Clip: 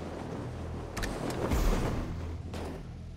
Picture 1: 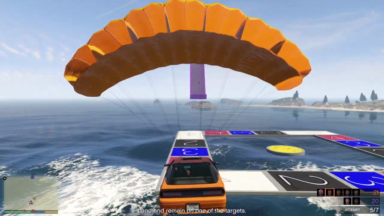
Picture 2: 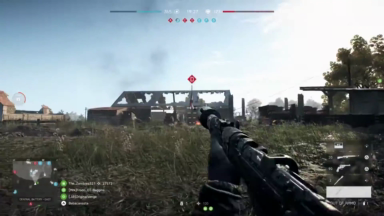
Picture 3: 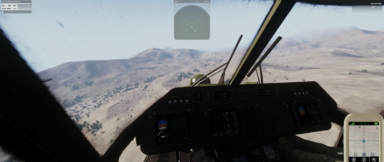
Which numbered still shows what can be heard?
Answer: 1